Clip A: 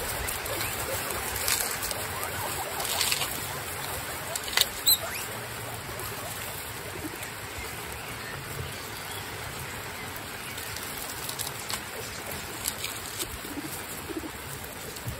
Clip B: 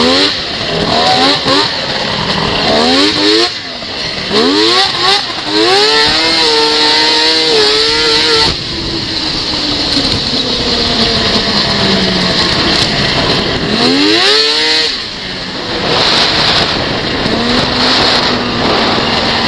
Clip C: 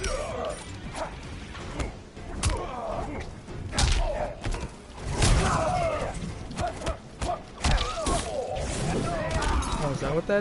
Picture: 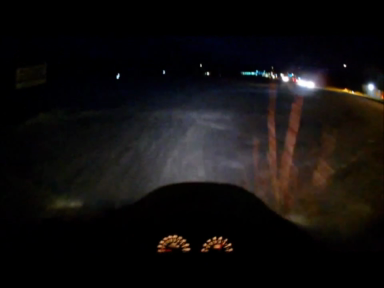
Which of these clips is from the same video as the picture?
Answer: B